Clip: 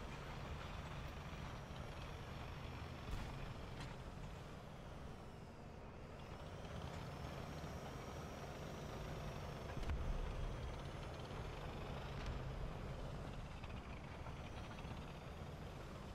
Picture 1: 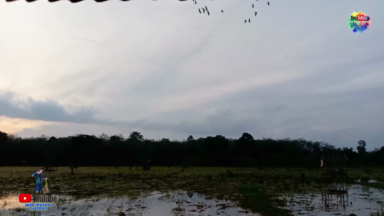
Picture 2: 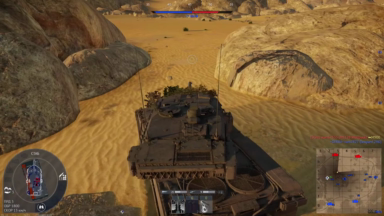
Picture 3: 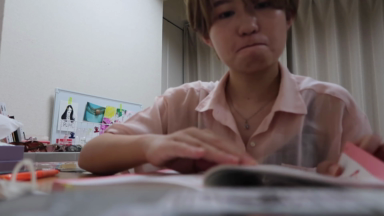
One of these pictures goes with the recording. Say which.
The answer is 2